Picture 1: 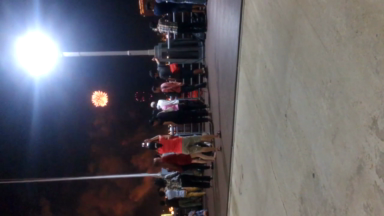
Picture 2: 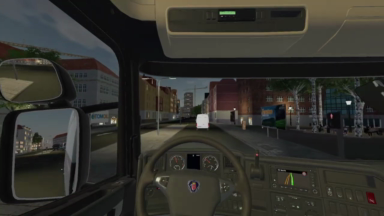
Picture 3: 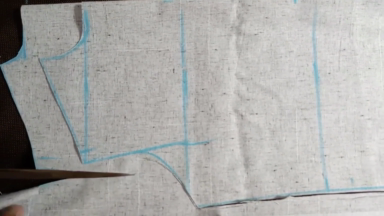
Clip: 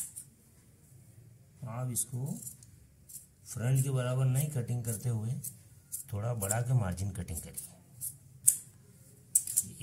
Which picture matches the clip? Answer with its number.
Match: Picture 3